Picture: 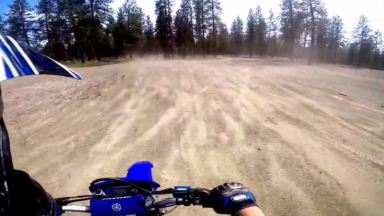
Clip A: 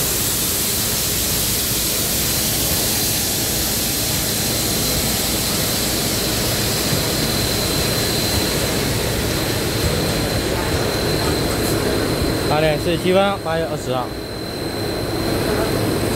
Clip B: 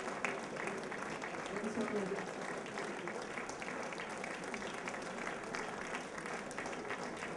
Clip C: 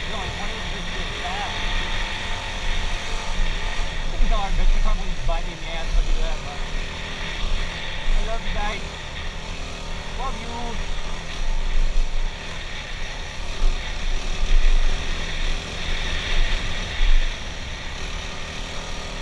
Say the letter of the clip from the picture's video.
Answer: C